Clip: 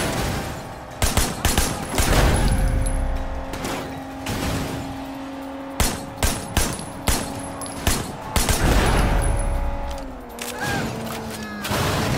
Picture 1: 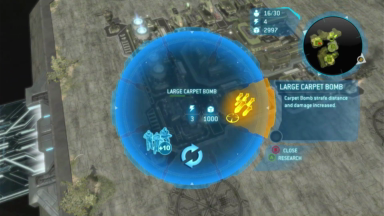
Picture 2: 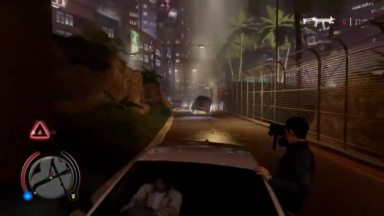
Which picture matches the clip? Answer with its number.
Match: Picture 2